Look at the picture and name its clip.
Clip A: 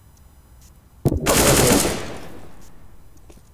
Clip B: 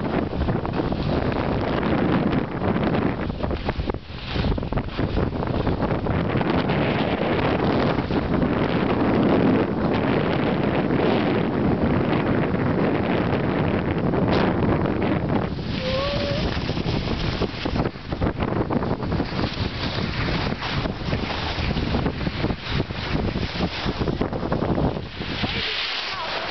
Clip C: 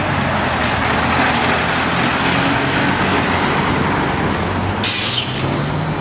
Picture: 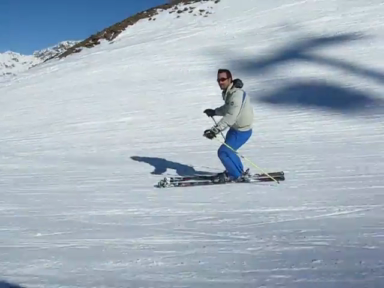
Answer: B